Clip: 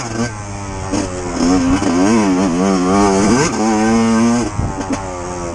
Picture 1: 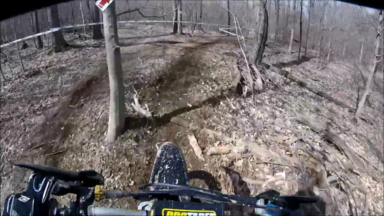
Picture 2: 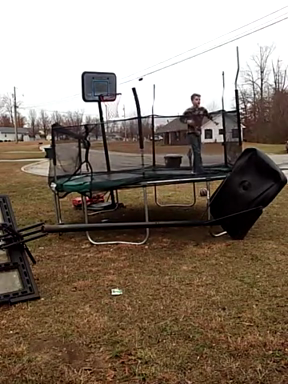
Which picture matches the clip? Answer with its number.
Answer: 1